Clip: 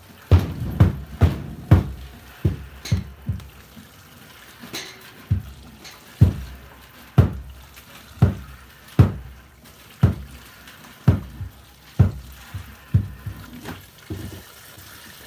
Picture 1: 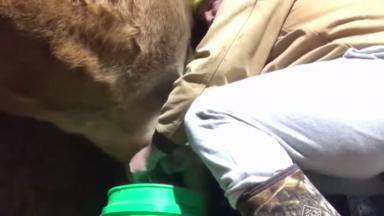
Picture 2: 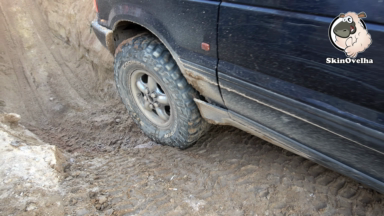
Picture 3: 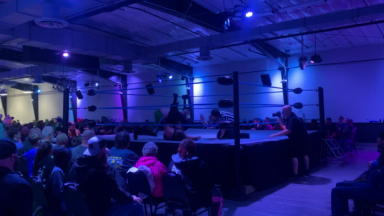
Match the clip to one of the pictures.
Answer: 1